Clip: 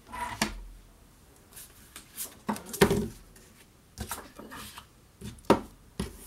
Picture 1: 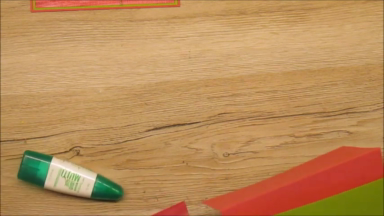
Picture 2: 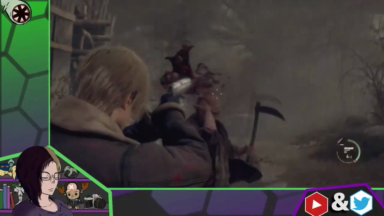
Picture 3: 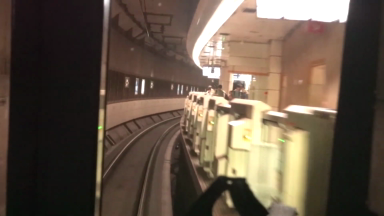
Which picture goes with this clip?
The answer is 1